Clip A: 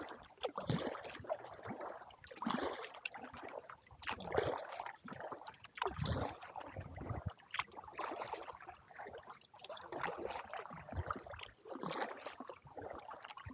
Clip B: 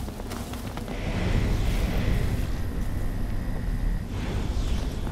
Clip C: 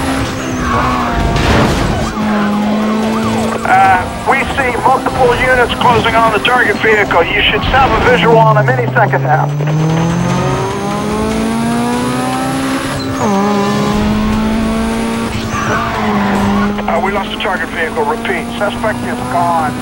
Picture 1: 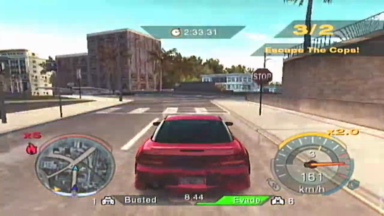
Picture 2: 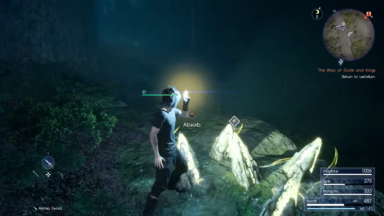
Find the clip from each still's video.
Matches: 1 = C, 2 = B